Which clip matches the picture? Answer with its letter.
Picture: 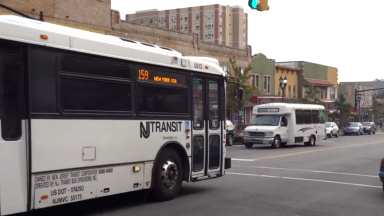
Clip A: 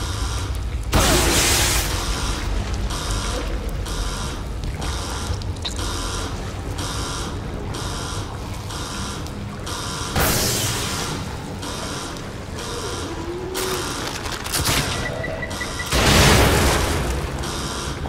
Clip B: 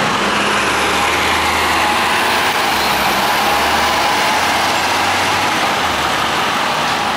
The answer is B